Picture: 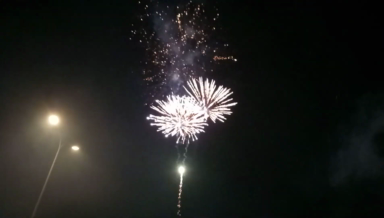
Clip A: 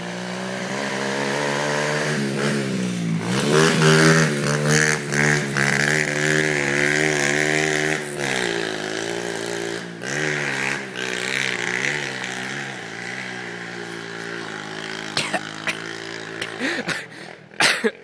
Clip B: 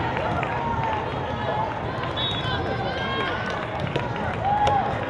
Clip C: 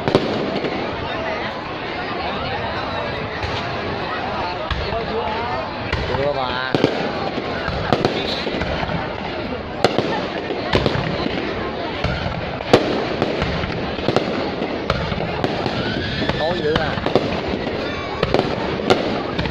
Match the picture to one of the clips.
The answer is C